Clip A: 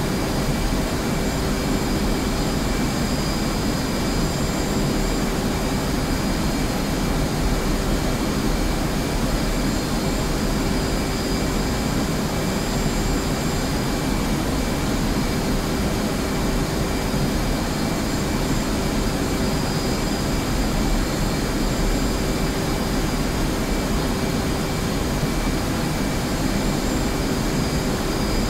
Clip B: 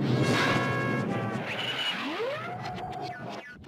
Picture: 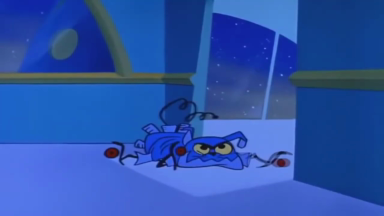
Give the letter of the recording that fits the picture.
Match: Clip B